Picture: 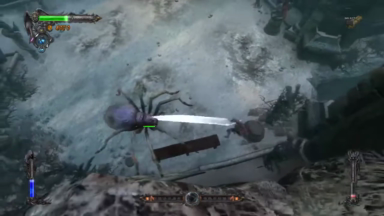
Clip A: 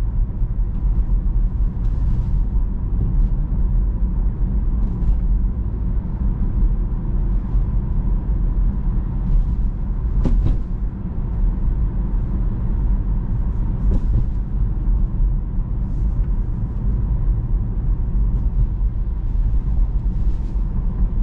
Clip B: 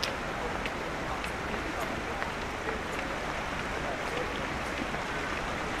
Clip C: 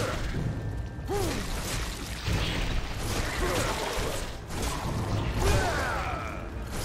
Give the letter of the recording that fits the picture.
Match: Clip C